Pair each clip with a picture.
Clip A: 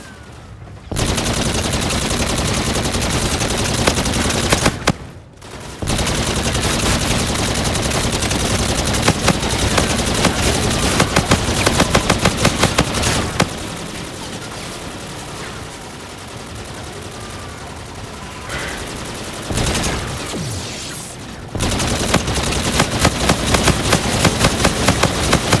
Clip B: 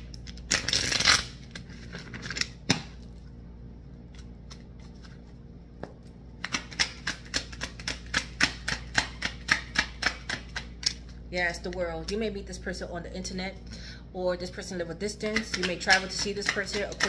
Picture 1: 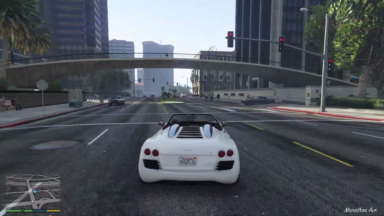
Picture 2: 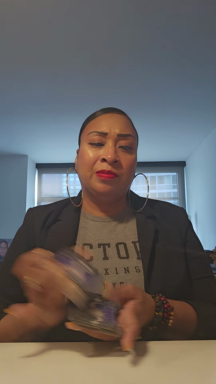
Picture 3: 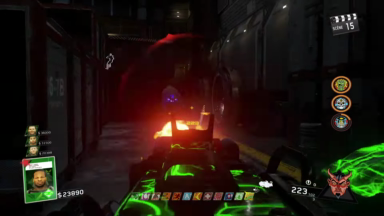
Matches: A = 3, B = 2